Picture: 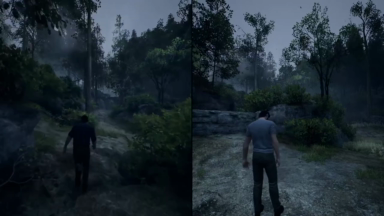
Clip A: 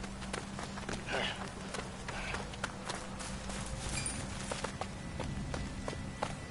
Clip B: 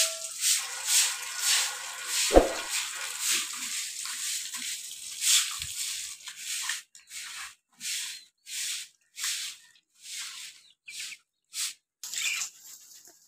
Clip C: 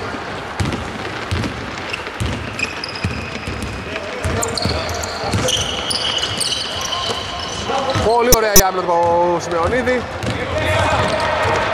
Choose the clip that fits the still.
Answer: A